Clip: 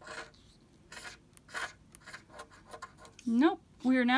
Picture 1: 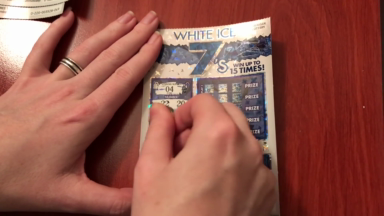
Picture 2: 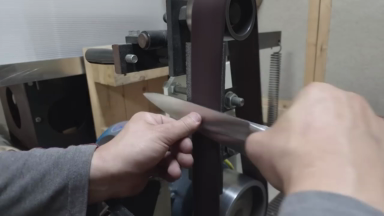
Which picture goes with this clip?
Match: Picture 1